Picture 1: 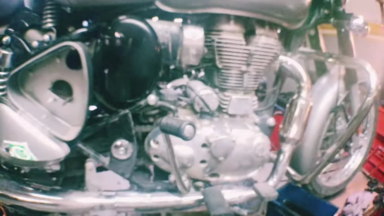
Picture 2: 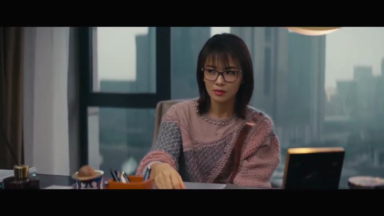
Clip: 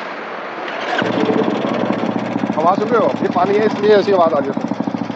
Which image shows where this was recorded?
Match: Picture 1